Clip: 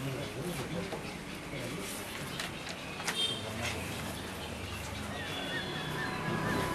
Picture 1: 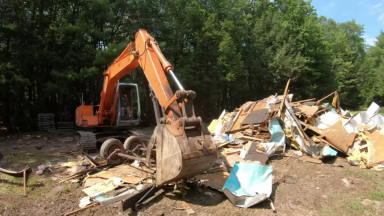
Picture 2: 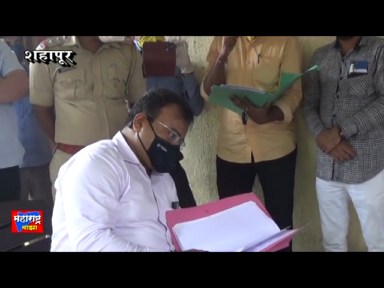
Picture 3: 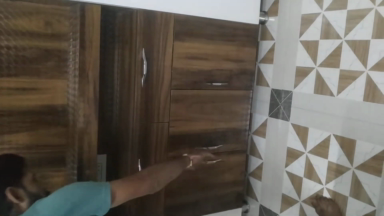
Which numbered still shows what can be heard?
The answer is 2